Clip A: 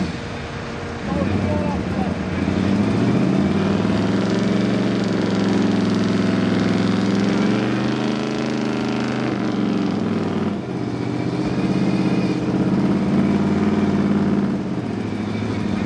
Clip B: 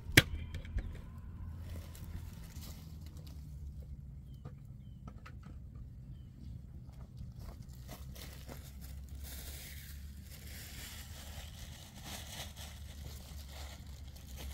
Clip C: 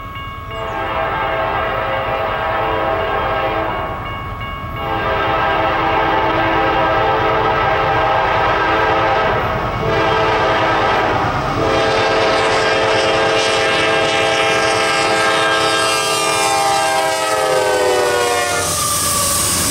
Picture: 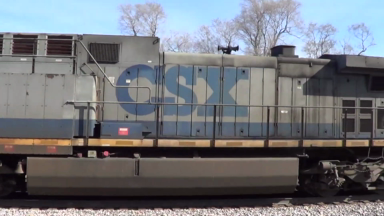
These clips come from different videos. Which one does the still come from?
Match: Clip C